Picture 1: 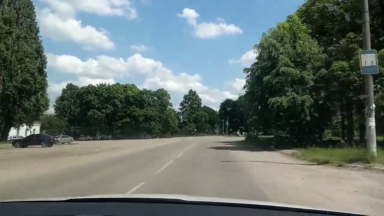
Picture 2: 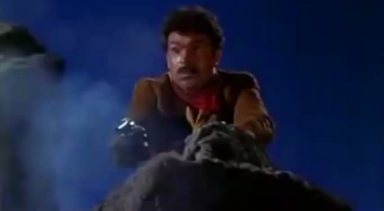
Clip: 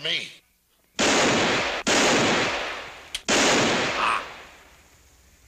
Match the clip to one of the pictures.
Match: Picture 2